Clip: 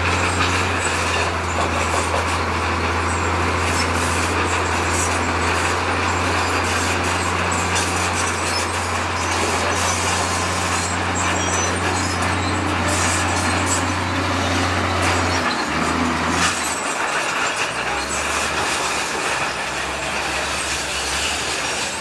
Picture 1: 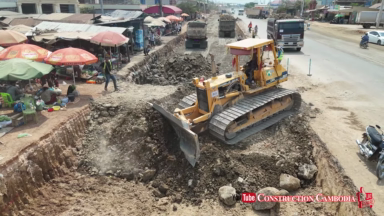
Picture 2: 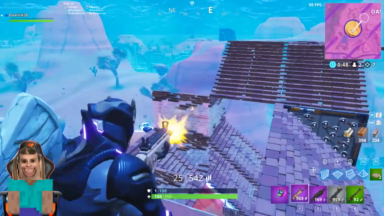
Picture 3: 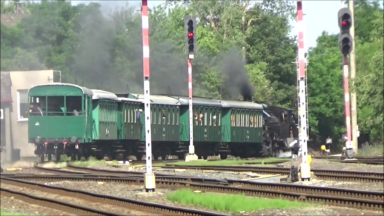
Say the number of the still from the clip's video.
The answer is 1